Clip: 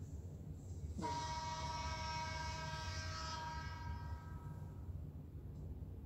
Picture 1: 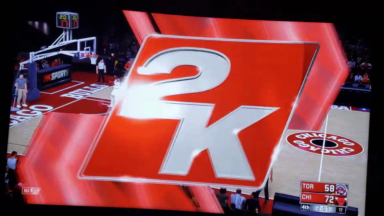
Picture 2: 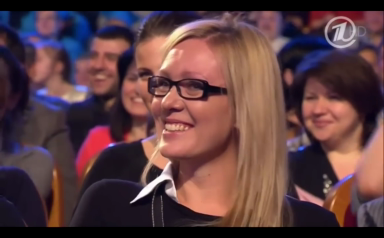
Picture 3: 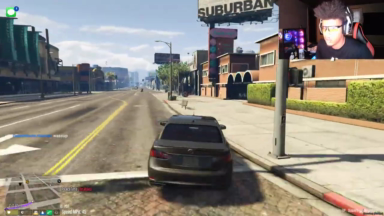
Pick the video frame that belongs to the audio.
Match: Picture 1